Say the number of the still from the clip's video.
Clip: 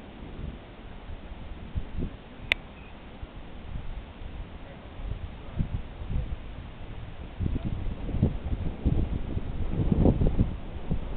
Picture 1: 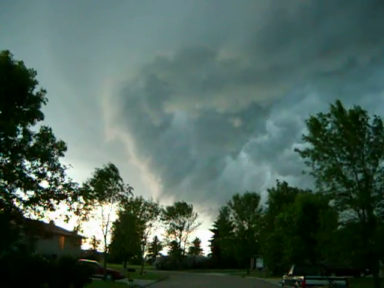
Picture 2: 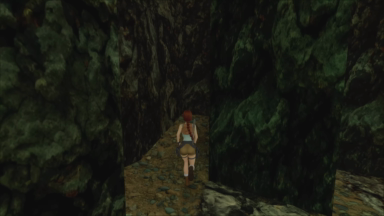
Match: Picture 1